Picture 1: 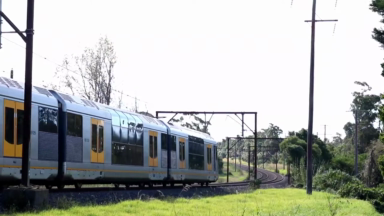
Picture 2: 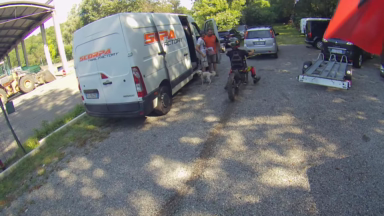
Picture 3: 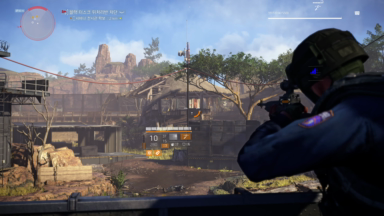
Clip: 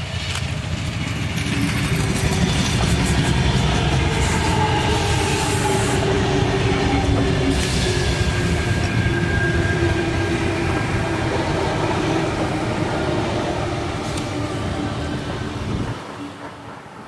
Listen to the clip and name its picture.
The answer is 1